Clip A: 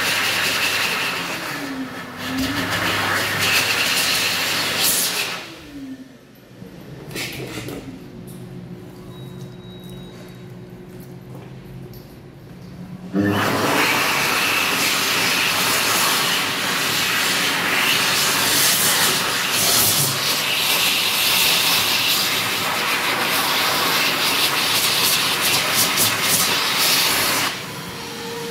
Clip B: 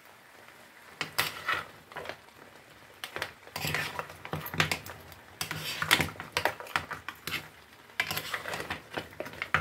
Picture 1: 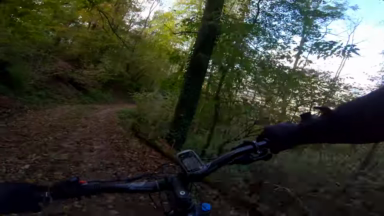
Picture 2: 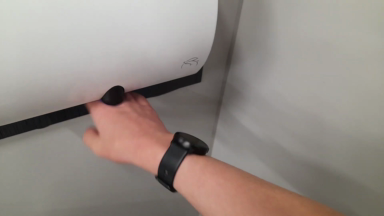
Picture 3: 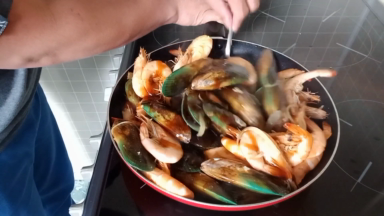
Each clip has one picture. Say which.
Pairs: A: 2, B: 3